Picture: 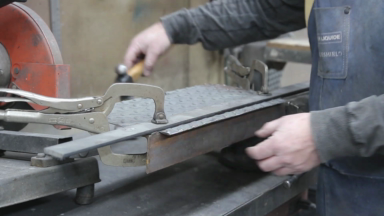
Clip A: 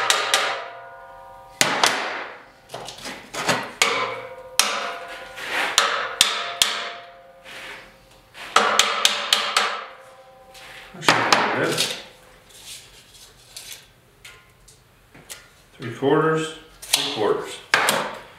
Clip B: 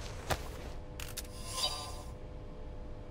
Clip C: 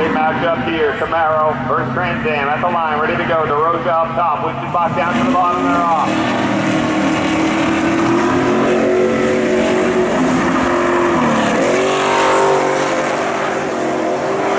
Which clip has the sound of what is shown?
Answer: A